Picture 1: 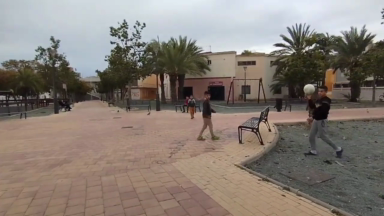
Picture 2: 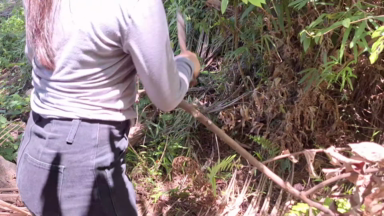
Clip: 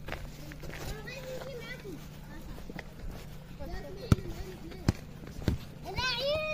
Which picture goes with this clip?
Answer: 1